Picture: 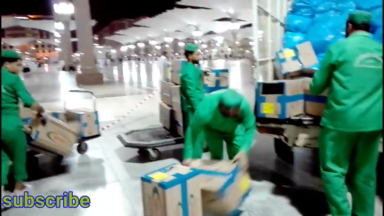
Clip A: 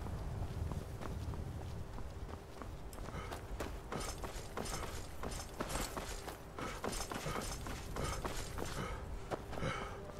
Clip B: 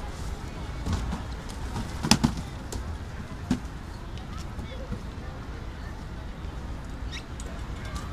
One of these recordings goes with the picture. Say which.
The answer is B